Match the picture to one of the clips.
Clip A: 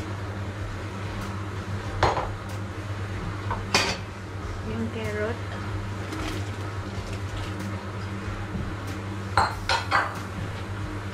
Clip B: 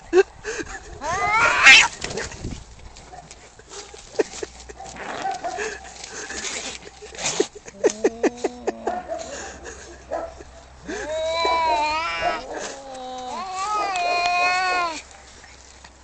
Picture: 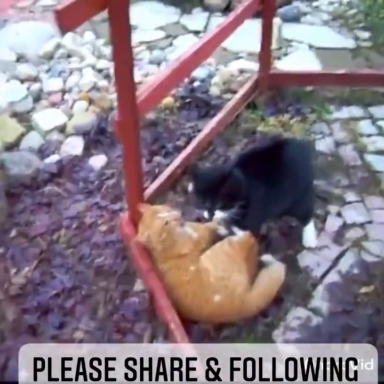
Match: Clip B